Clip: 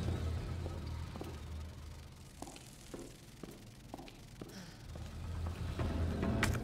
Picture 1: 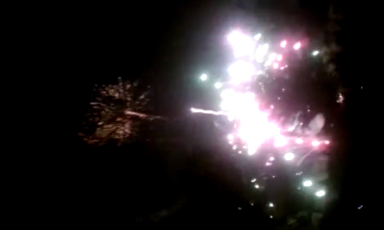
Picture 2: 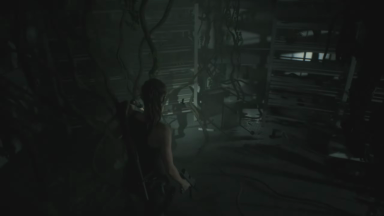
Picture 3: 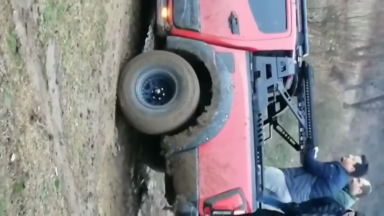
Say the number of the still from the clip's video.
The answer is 2